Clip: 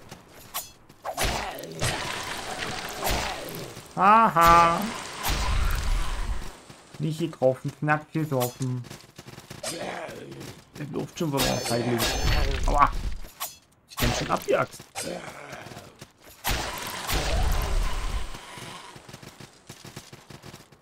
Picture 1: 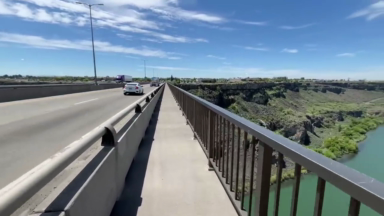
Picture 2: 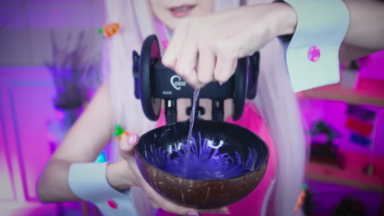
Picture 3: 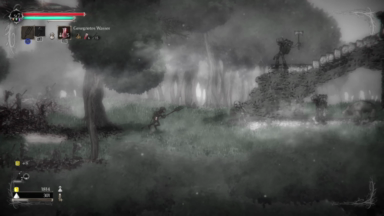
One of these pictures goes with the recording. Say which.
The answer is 3